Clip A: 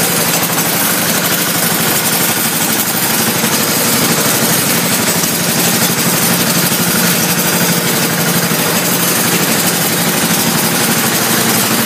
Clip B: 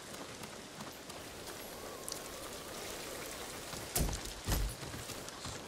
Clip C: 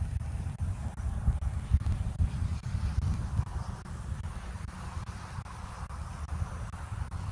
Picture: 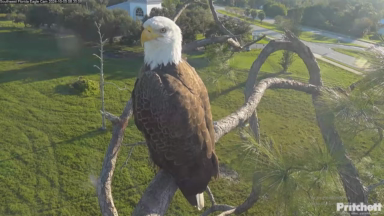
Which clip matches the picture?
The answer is C